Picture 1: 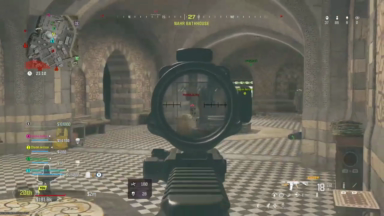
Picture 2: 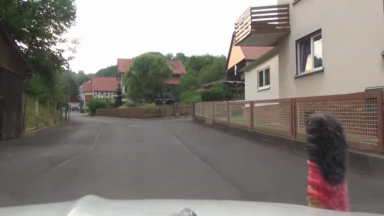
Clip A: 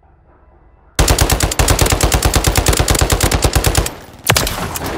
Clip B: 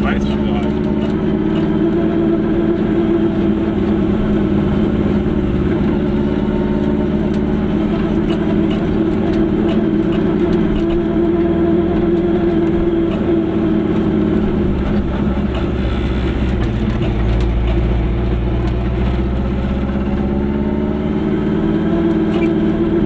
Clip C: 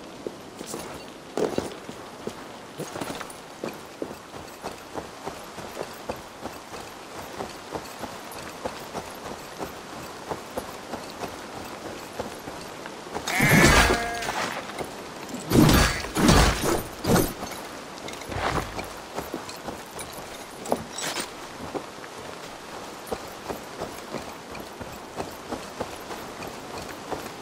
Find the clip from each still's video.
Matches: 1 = A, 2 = B